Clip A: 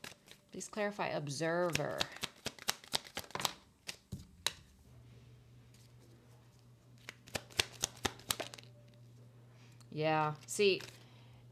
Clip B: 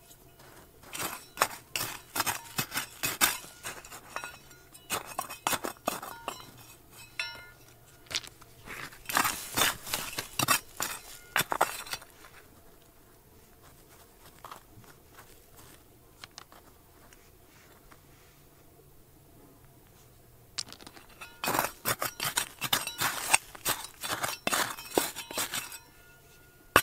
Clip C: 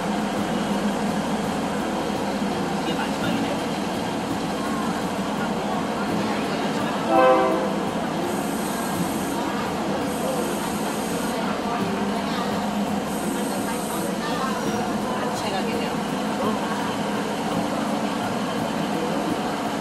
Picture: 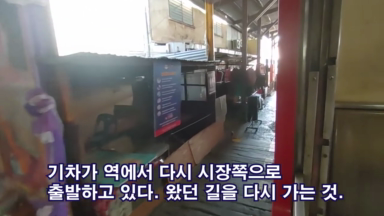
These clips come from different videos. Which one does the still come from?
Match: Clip C